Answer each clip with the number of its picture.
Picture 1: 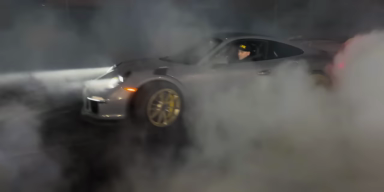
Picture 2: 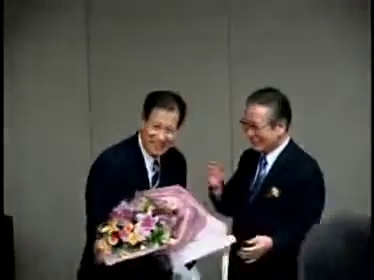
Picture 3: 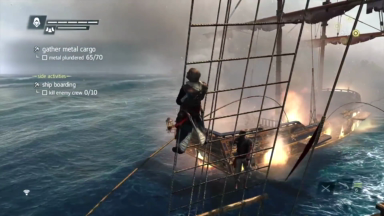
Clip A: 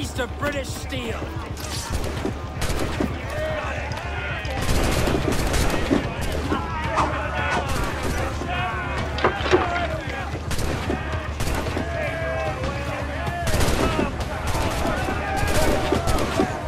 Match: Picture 3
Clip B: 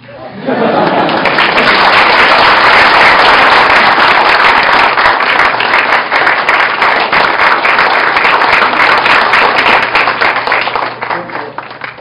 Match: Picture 2